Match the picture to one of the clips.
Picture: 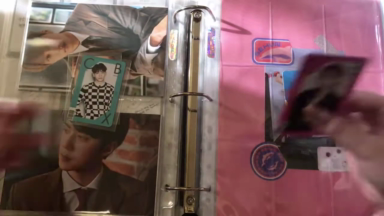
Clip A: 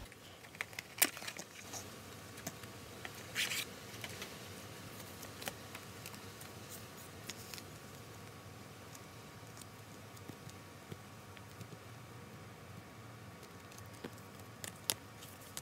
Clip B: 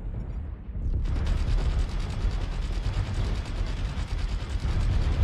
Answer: A